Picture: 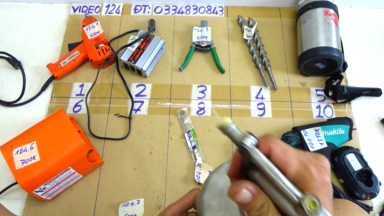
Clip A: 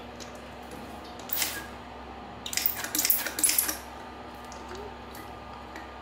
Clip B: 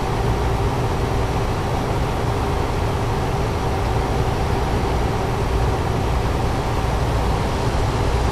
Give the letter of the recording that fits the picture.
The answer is A